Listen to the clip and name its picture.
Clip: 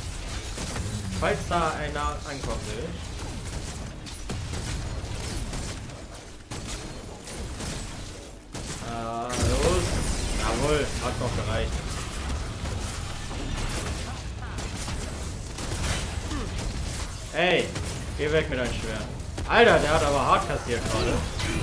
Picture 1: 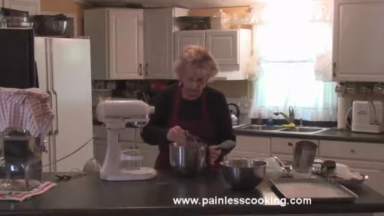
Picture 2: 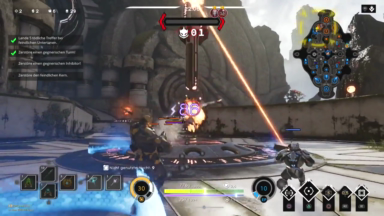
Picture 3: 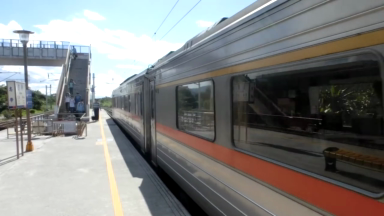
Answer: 2